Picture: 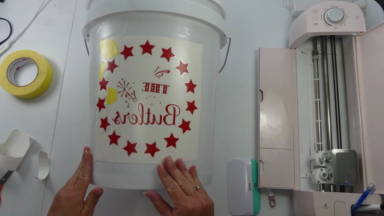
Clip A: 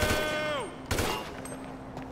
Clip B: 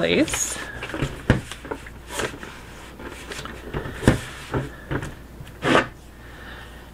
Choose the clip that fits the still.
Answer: B